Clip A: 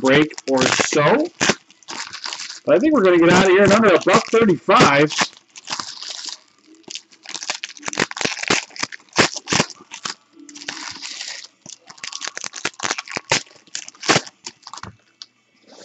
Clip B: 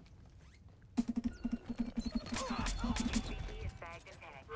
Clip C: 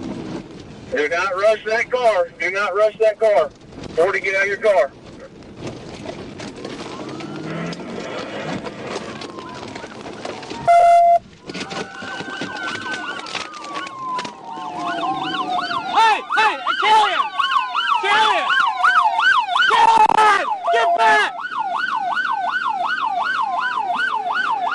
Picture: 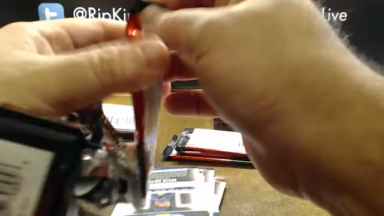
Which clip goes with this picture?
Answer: A